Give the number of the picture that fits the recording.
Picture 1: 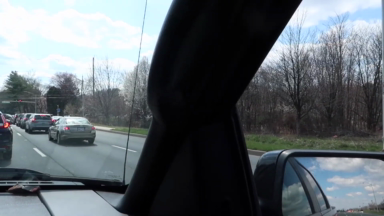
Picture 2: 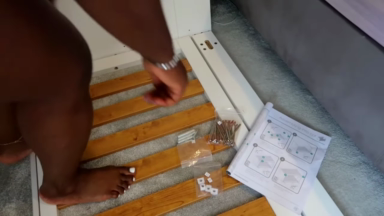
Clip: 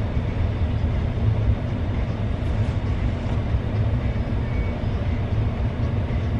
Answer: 1